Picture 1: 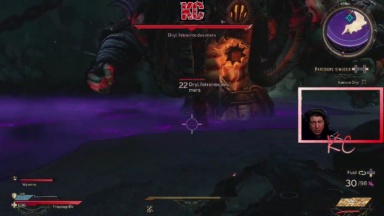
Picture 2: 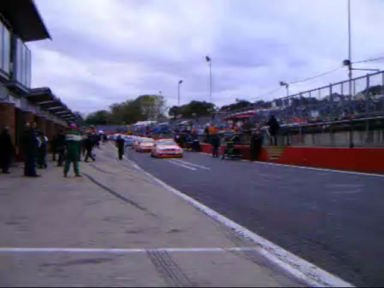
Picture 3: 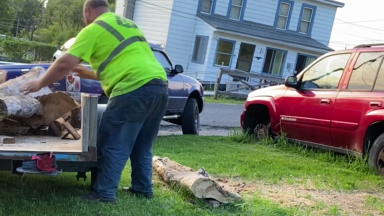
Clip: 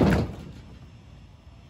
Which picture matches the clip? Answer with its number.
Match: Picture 3